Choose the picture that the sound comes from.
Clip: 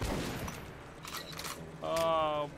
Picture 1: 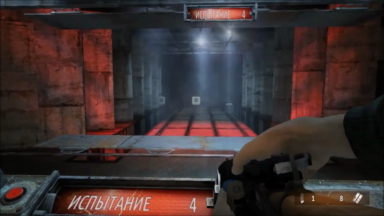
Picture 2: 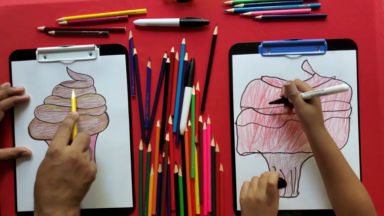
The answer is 1